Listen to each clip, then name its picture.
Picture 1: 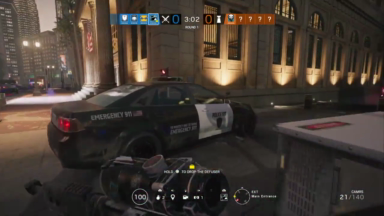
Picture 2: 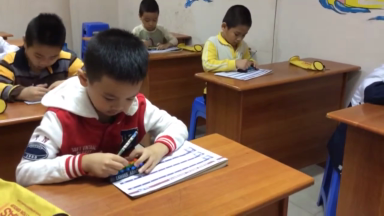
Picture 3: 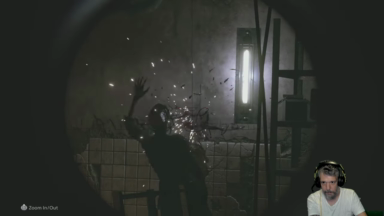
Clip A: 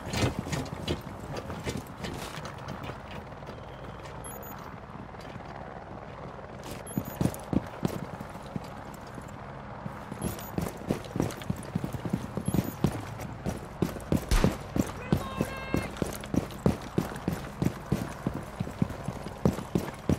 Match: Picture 1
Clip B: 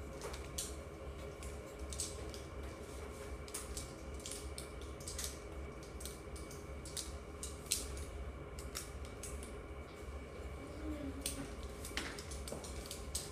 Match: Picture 2